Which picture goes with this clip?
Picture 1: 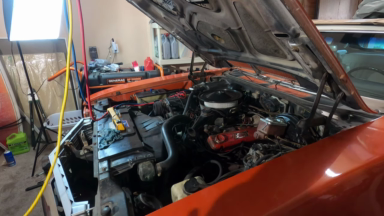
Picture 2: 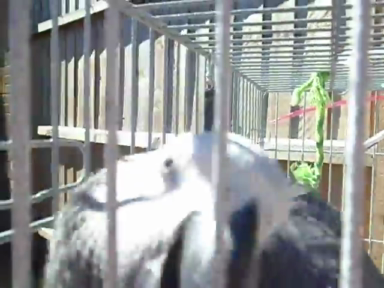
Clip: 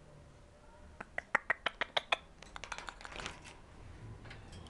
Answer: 2